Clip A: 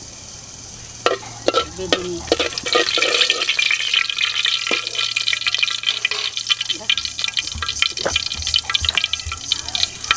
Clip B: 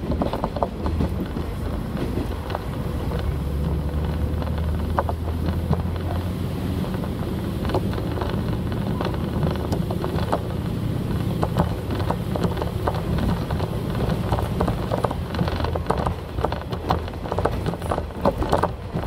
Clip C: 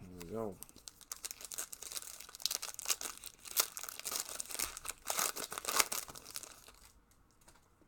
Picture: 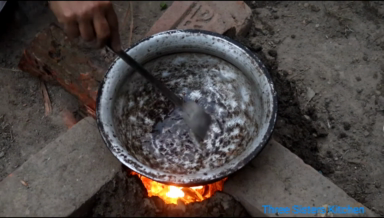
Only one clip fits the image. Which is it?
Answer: A